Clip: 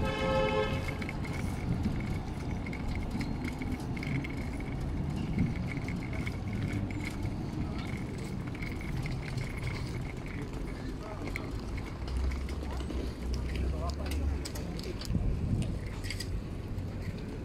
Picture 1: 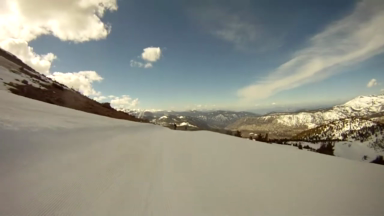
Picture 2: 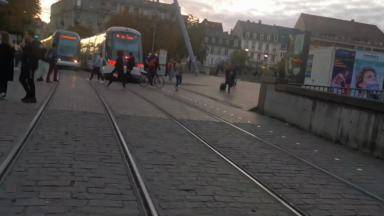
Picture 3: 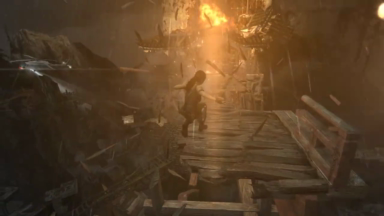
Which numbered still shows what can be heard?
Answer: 2